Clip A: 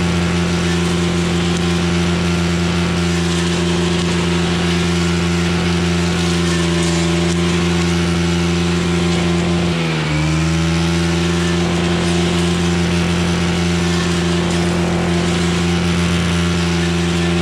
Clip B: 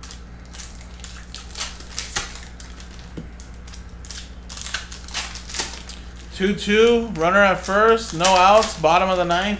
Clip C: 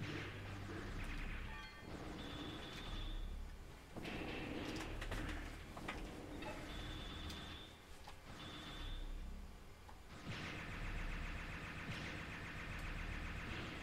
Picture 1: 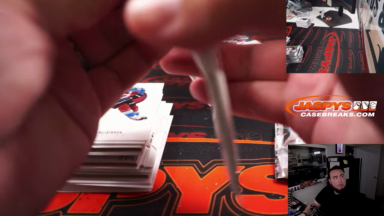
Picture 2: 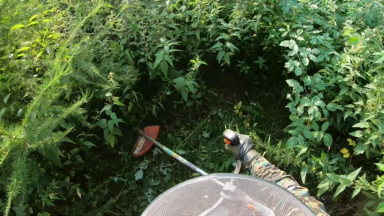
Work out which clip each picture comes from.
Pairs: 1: B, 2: A